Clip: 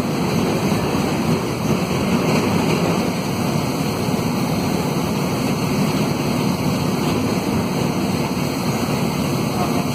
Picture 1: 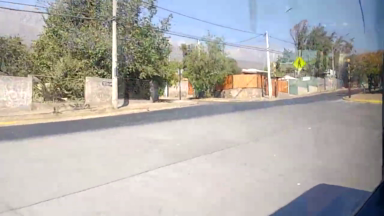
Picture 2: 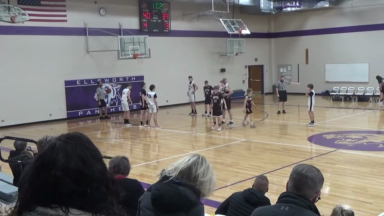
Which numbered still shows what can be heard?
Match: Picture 1